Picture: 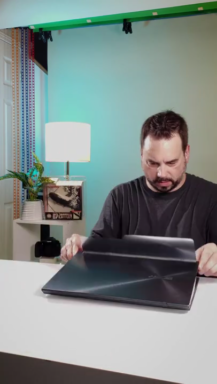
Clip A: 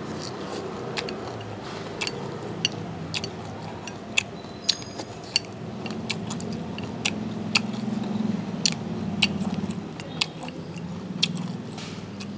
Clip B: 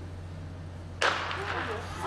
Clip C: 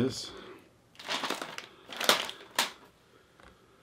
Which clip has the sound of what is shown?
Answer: C